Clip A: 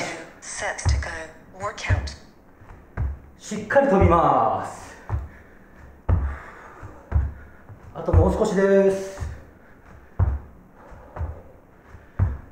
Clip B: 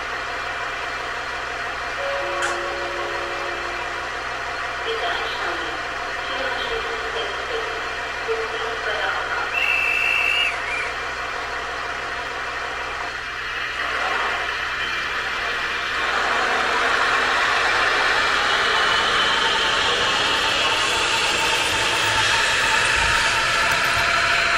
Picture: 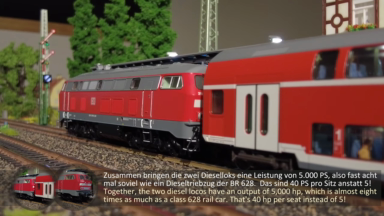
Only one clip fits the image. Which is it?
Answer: B